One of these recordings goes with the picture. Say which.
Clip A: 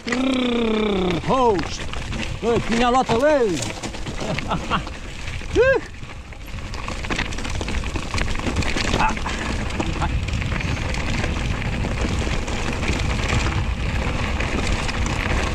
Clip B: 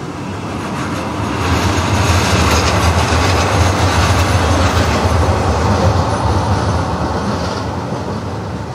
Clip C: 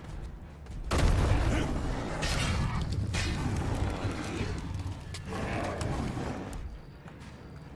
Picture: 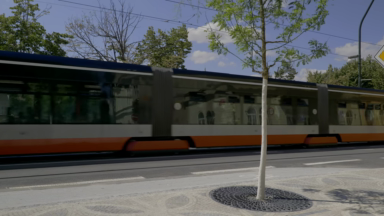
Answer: B